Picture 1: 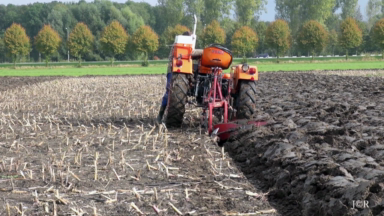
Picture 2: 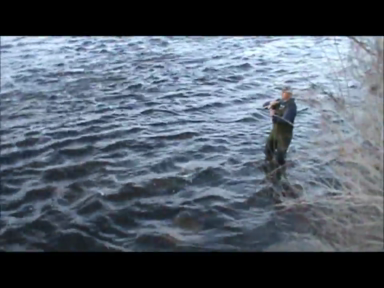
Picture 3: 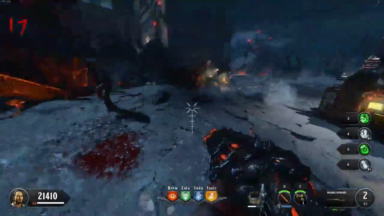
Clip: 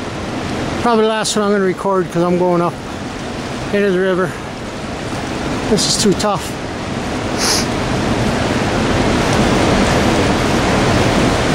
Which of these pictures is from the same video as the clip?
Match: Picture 2